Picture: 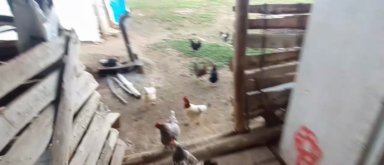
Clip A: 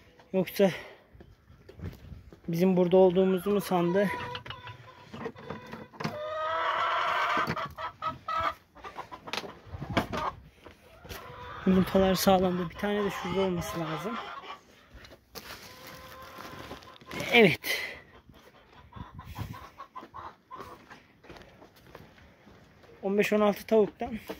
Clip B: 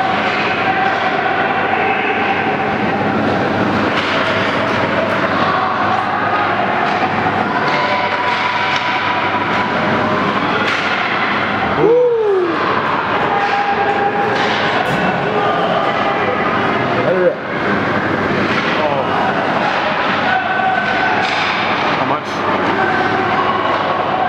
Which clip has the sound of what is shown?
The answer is A